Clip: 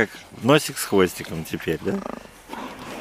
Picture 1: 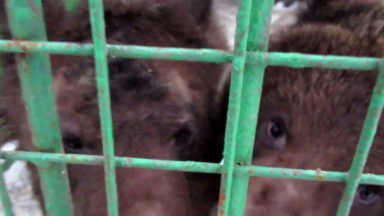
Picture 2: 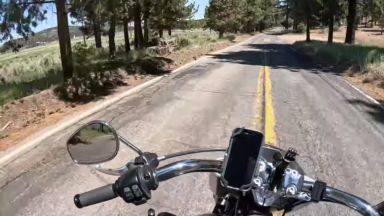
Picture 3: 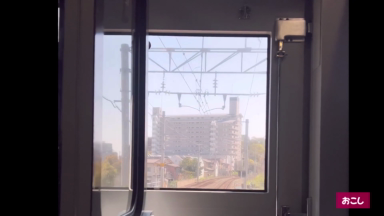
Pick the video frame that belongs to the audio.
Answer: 1